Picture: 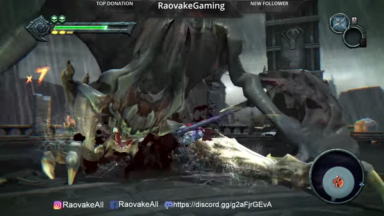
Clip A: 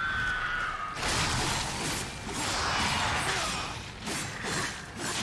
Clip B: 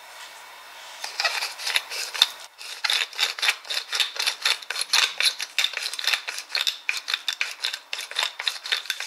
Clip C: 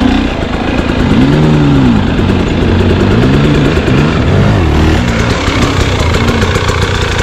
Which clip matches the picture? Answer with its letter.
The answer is A